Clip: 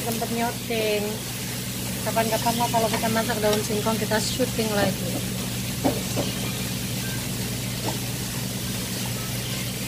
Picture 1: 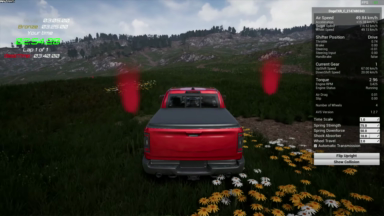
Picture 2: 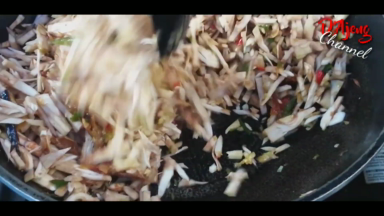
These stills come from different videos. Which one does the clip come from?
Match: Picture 2